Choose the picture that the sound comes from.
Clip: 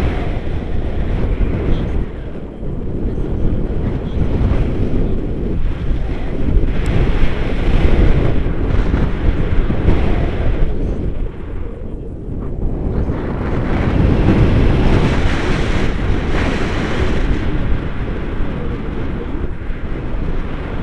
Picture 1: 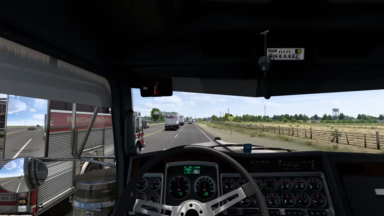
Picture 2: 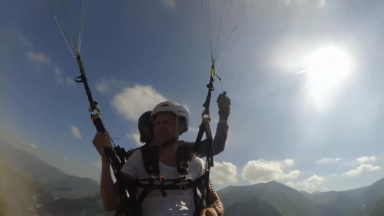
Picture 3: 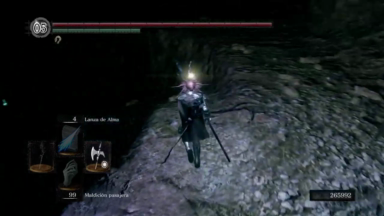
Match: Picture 2